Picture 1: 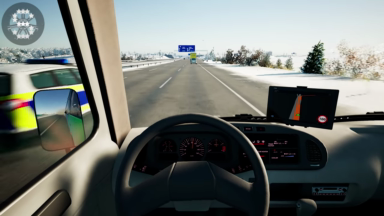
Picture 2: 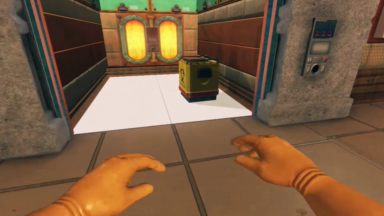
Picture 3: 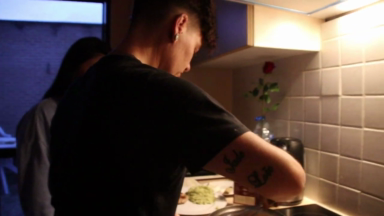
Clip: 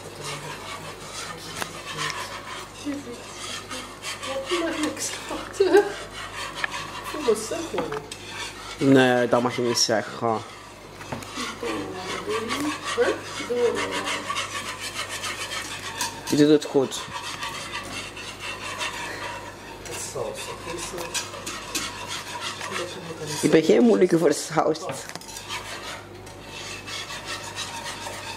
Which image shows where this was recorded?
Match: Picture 3